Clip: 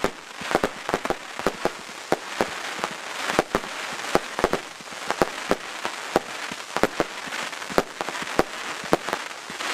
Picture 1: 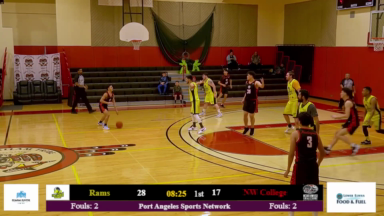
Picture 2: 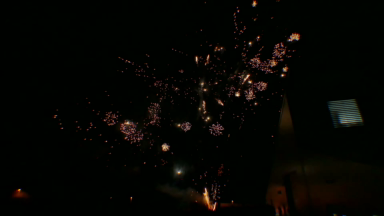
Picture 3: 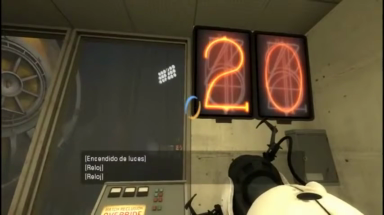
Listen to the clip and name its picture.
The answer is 2